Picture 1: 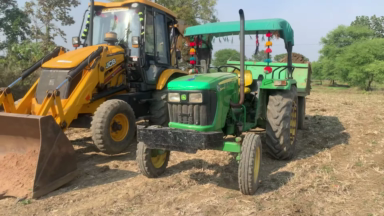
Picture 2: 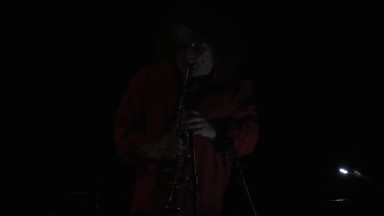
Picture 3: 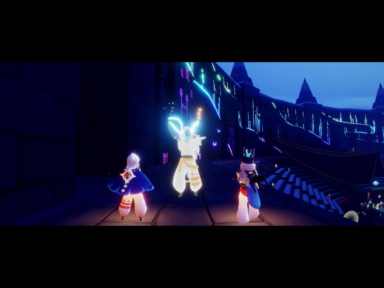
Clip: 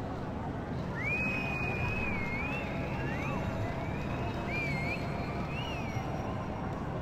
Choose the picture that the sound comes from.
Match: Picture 3